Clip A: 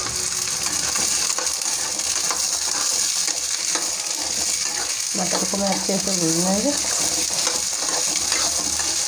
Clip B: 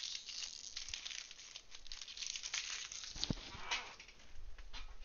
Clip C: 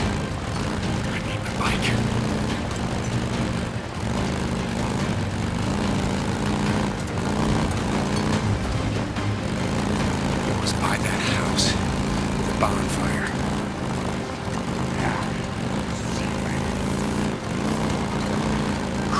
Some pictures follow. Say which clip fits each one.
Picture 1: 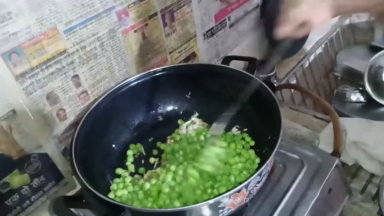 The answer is A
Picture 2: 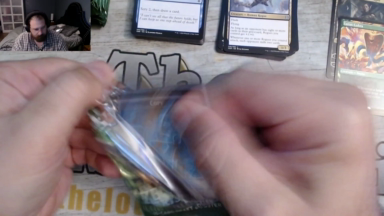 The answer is B